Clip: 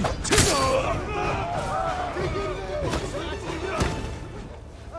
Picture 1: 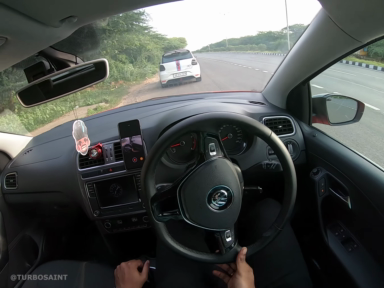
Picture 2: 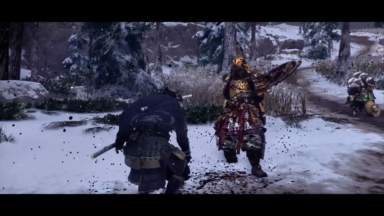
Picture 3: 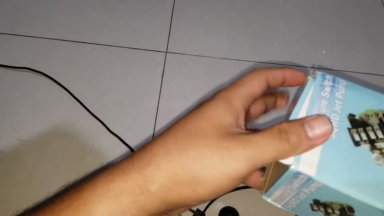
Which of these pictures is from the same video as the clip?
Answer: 2